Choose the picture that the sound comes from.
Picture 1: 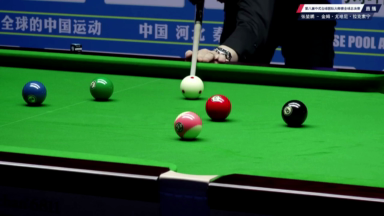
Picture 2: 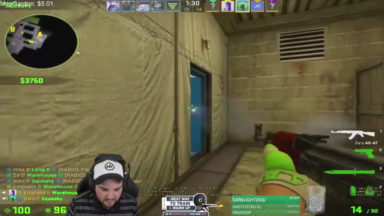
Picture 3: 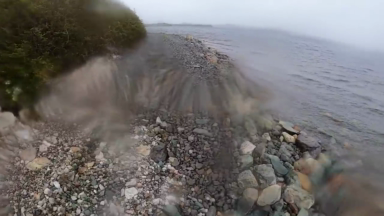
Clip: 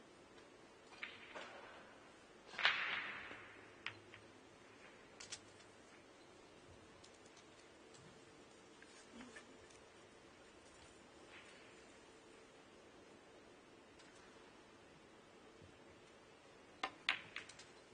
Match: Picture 1